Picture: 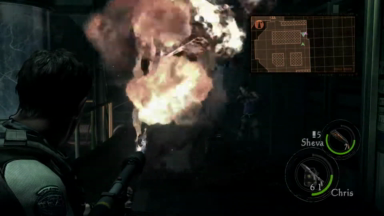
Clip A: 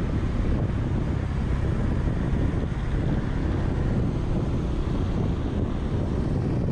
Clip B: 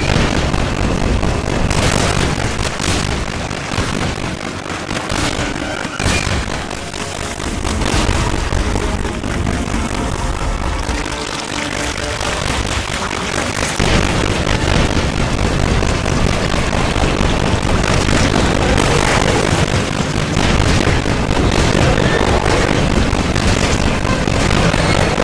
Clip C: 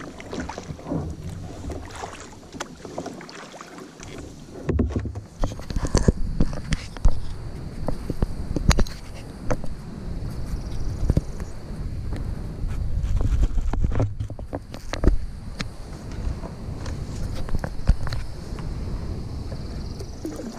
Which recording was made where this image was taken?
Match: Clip B